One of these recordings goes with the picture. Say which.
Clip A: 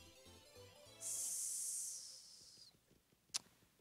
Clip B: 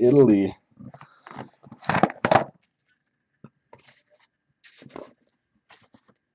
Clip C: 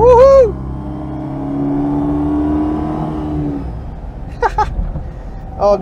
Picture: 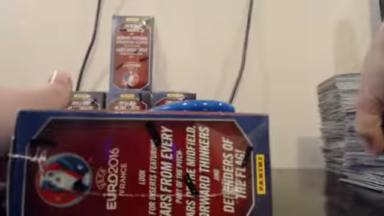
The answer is B